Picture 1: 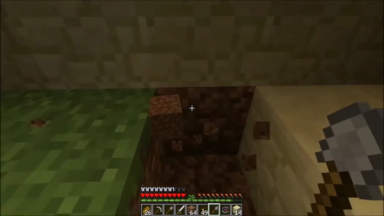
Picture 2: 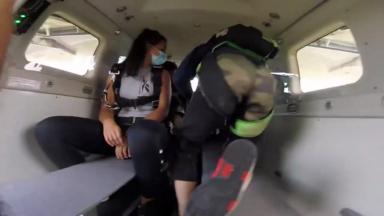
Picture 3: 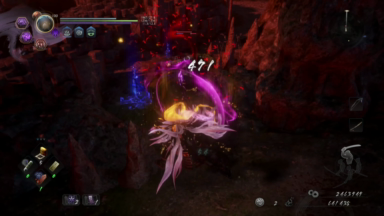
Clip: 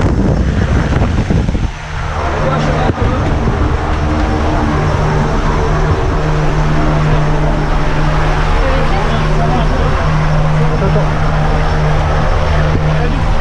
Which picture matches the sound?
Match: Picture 2